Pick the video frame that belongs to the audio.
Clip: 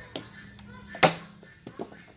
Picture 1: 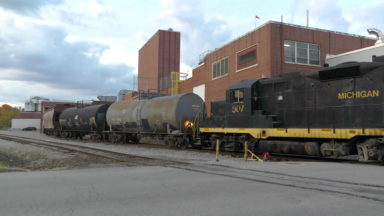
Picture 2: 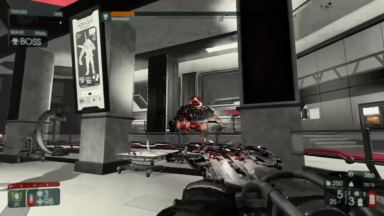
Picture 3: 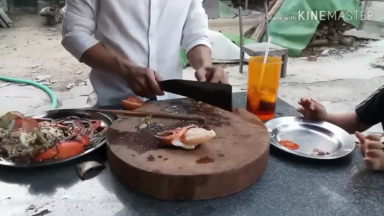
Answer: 3